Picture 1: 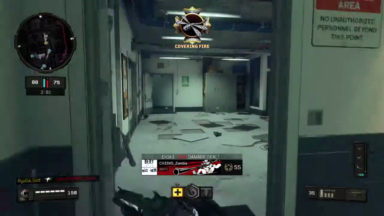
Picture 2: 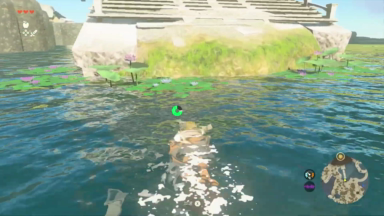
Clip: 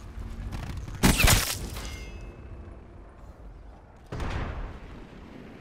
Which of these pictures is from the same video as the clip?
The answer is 1